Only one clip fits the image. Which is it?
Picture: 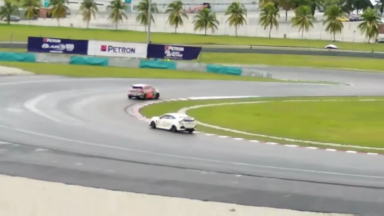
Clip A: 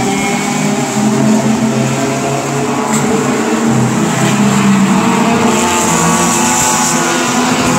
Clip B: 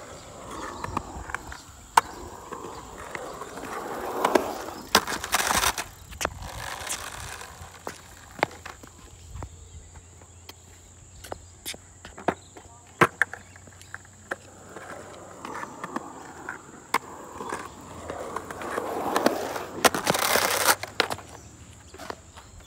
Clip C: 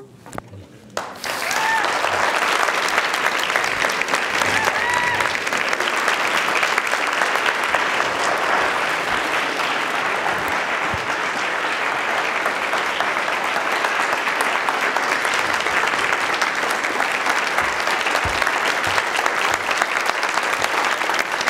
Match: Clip A